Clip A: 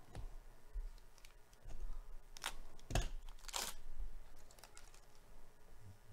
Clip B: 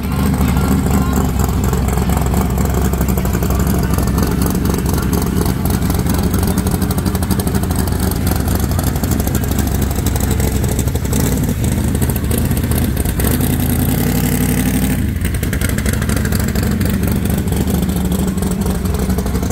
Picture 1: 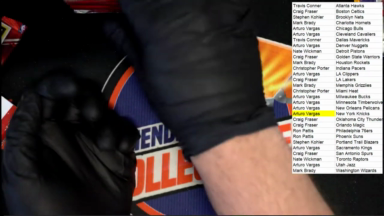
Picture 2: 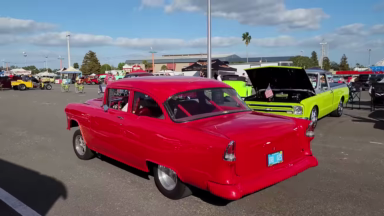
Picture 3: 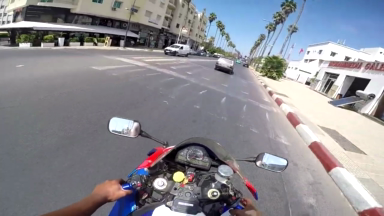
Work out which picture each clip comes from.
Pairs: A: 1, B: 2